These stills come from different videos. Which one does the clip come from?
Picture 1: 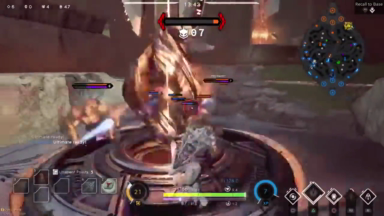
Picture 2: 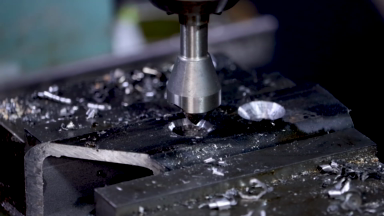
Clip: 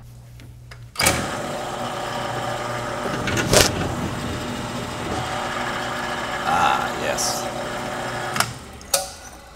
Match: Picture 2